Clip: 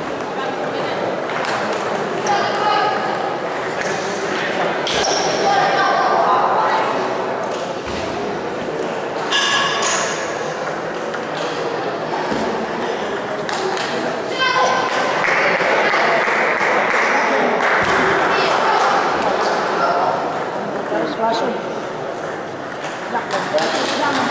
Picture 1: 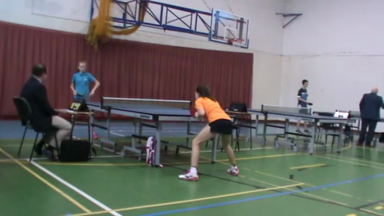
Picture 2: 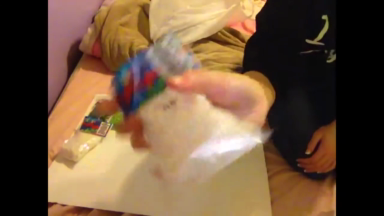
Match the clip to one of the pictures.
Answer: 1